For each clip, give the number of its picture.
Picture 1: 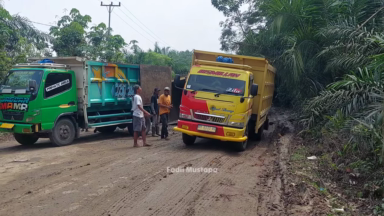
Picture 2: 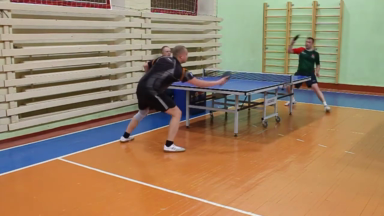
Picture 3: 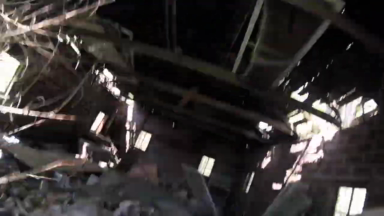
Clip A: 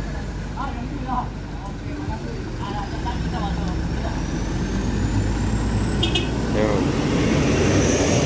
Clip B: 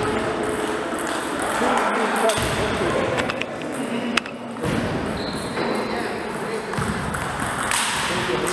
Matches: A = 1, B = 2